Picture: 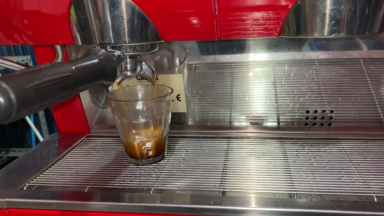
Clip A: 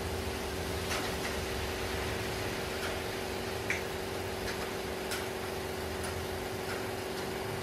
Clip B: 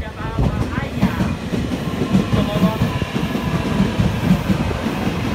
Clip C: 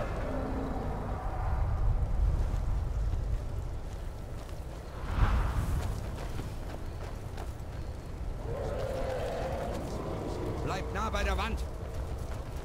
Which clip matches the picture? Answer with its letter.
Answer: A